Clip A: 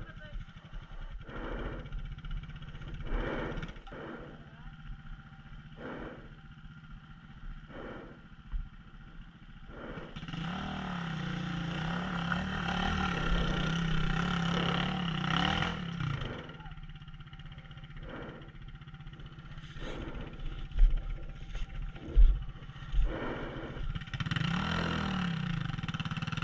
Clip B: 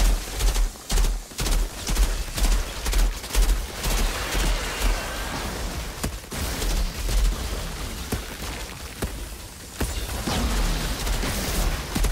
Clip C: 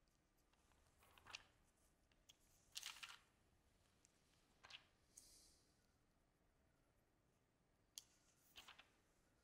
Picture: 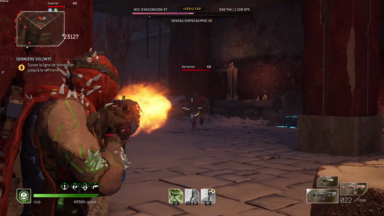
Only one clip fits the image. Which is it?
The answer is B